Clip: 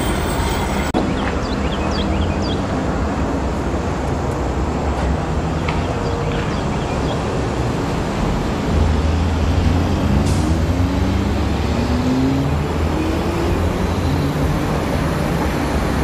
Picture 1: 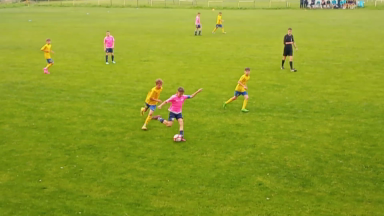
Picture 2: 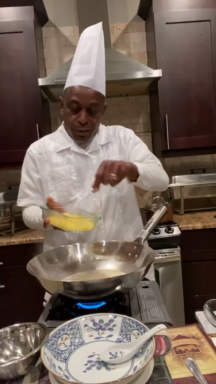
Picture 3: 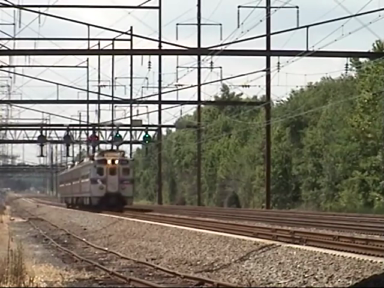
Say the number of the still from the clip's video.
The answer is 3